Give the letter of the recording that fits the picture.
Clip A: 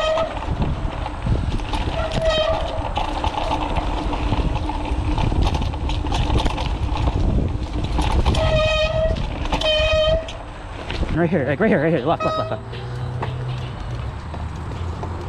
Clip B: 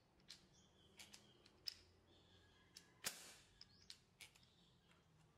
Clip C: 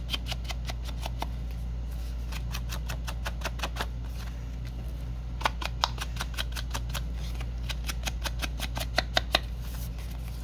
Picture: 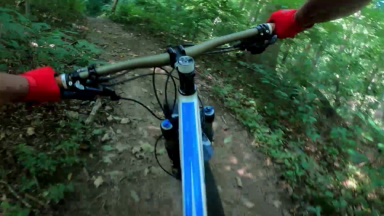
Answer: A